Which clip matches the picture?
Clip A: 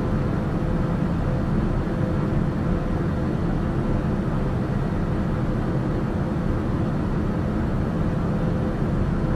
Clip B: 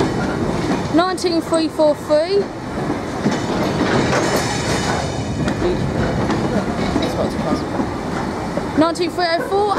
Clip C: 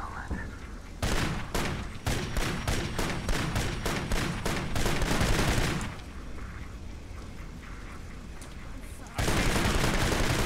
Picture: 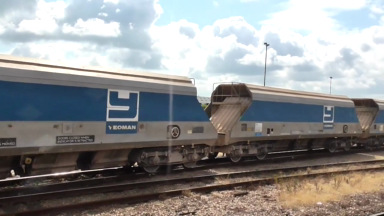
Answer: B